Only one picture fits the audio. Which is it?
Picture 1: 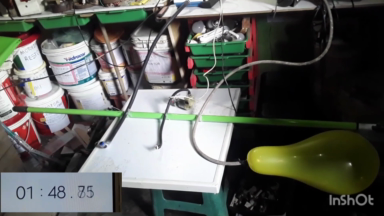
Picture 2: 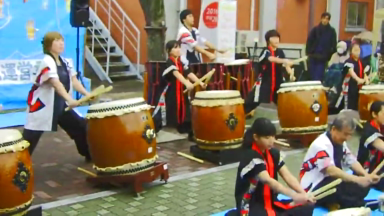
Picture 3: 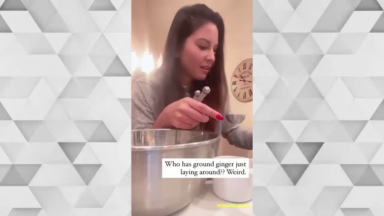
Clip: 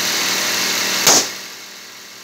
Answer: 1